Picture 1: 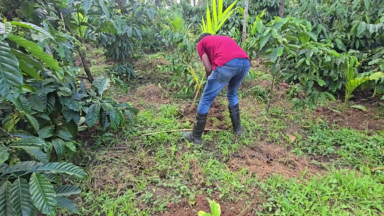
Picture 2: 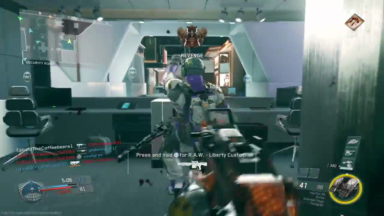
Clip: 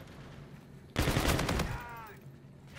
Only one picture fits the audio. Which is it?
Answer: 2